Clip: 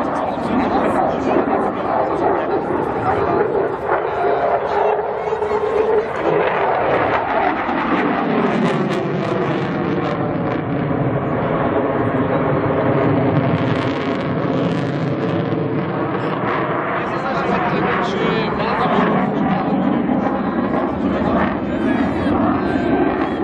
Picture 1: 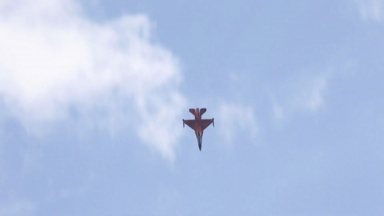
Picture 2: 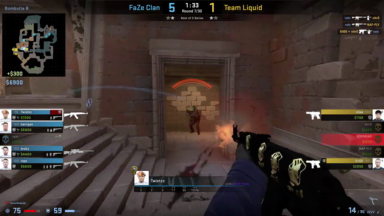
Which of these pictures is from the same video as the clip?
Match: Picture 1